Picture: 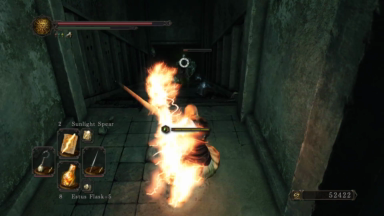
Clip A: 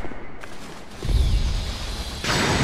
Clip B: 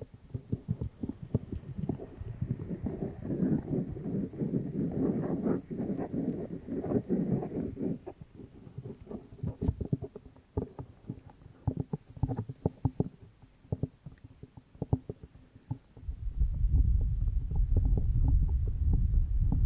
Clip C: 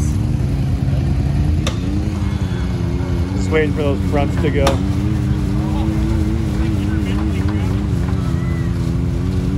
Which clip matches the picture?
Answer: A